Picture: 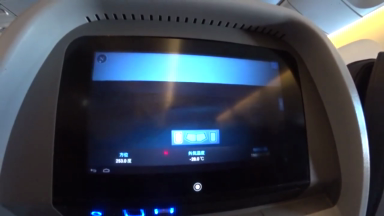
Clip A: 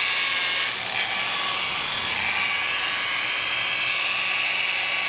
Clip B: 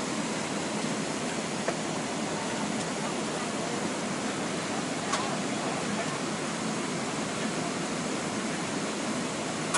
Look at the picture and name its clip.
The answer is B